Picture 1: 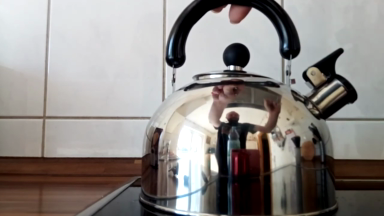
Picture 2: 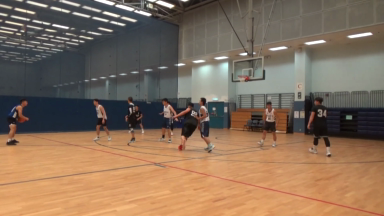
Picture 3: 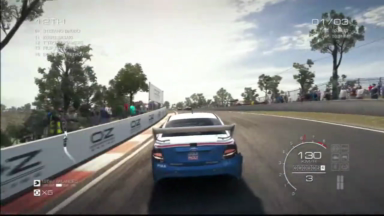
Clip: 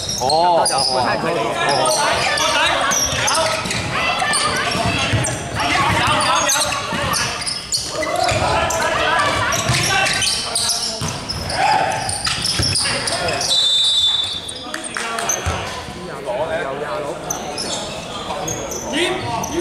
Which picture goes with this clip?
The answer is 2